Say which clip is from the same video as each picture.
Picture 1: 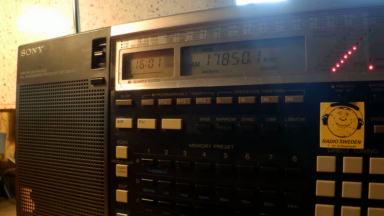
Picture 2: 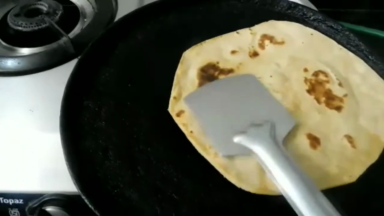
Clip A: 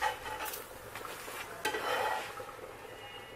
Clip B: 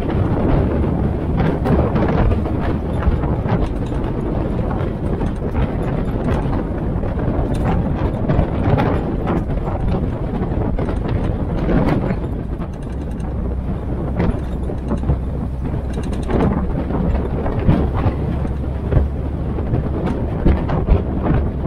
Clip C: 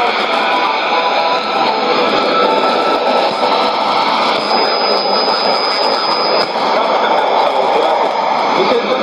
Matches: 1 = C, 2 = A